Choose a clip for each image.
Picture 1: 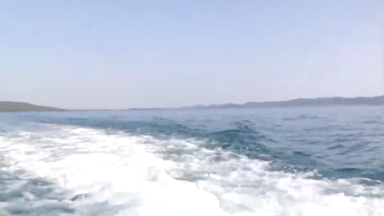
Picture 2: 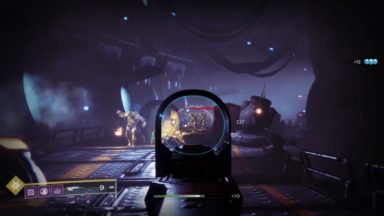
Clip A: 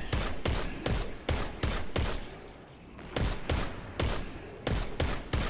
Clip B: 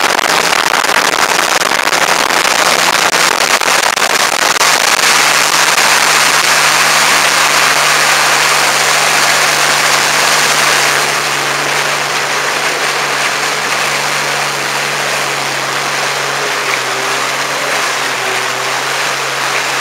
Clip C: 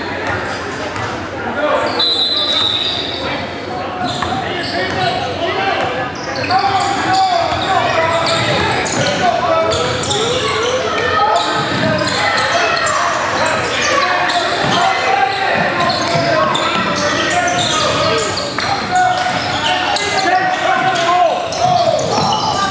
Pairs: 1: B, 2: A